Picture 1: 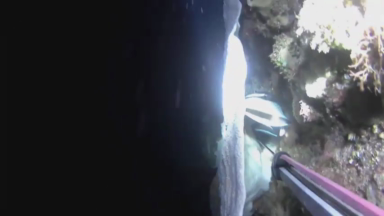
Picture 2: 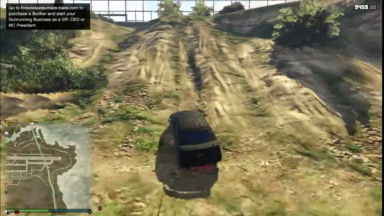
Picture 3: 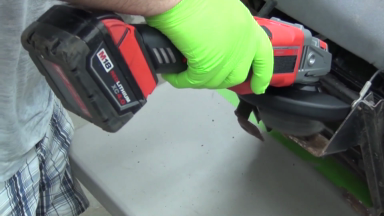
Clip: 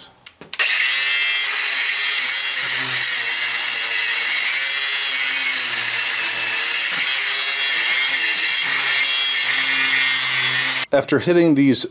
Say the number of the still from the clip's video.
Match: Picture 3